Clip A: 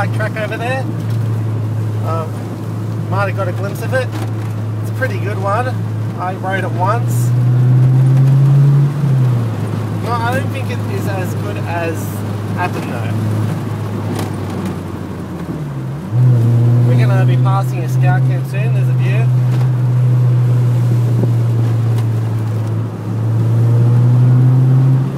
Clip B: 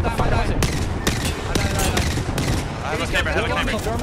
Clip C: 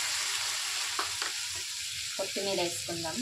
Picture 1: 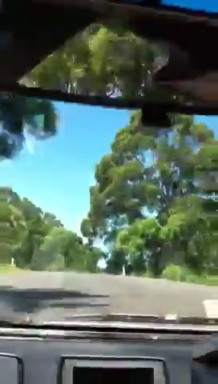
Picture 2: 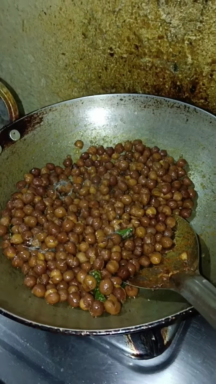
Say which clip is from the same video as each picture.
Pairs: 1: A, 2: C